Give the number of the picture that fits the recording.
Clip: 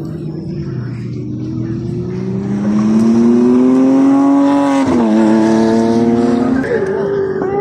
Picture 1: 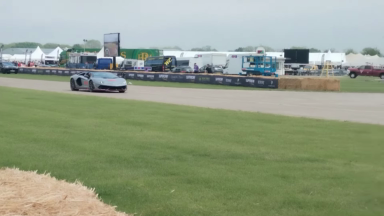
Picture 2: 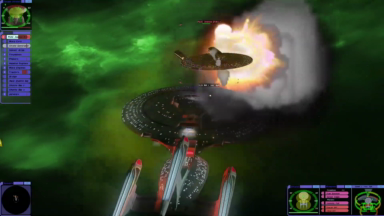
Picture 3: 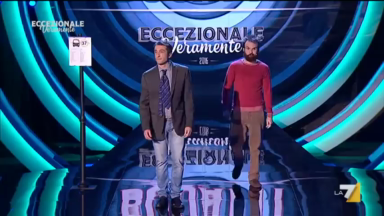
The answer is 1